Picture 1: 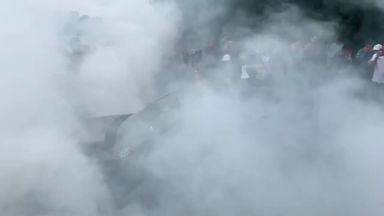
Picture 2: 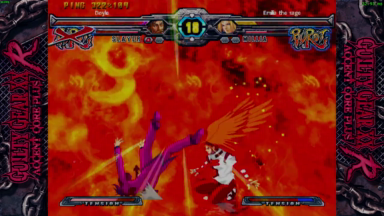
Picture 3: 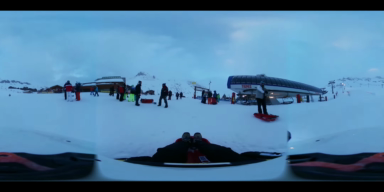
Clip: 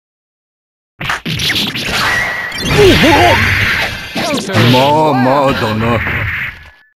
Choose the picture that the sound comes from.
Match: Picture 2